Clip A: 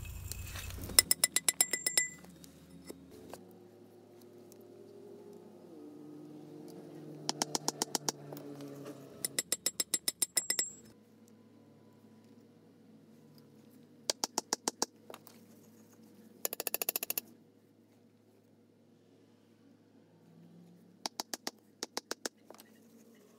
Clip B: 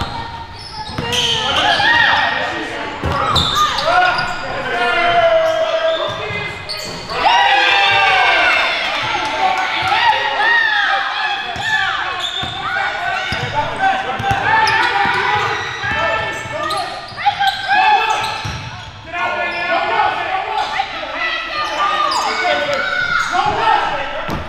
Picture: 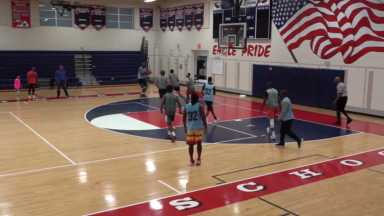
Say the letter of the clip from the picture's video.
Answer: B